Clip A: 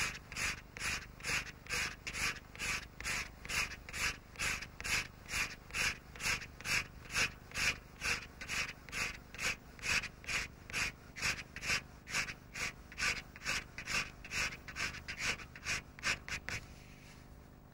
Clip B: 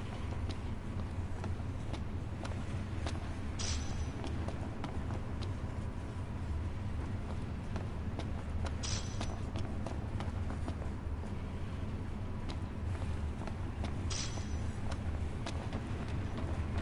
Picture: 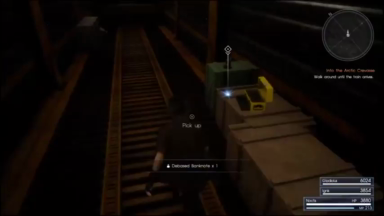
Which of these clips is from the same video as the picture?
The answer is B